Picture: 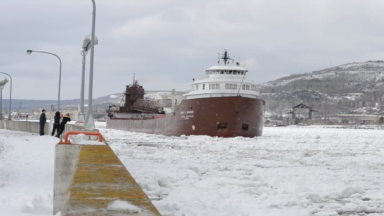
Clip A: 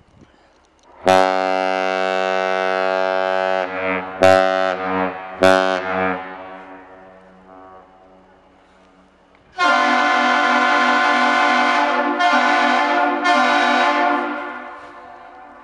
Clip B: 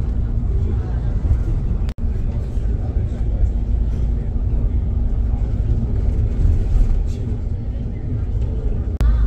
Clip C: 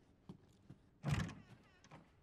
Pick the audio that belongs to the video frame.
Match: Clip A